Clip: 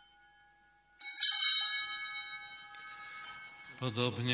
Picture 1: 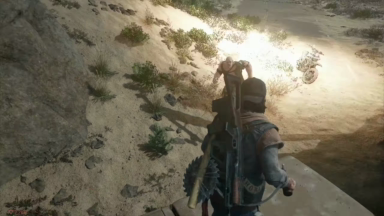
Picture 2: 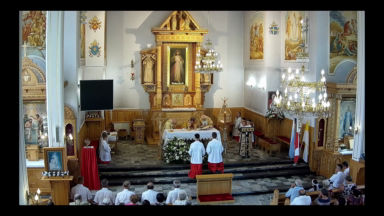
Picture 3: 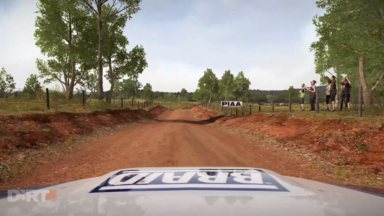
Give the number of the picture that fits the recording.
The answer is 2